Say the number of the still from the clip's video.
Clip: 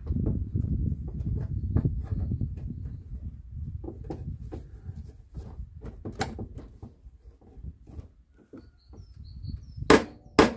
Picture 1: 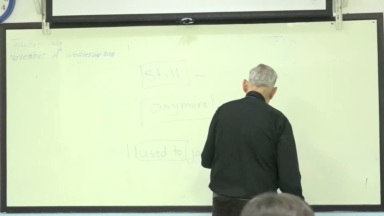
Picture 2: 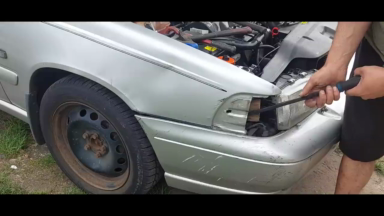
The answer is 2